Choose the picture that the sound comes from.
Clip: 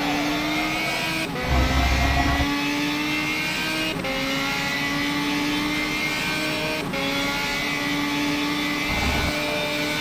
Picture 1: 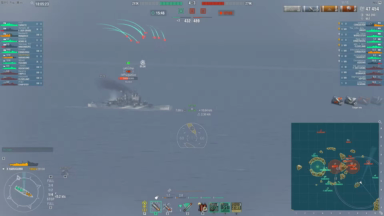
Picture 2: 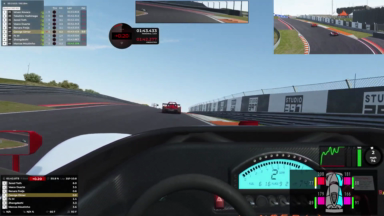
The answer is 2